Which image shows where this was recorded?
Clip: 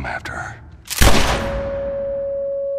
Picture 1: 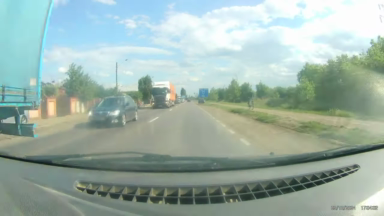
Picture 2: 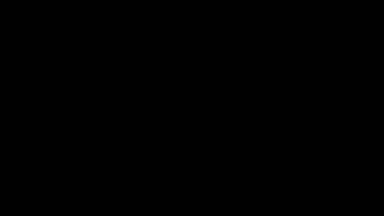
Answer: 2